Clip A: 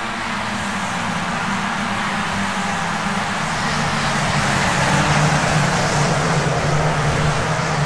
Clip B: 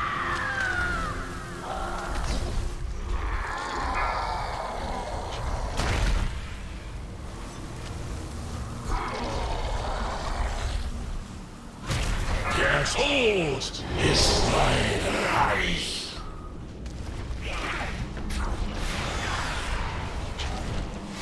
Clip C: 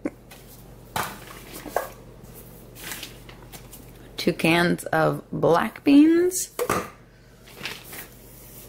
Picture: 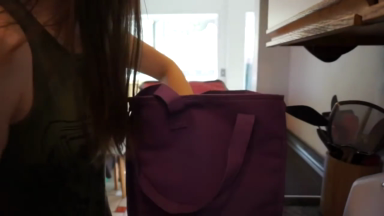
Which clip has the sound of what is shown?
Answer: C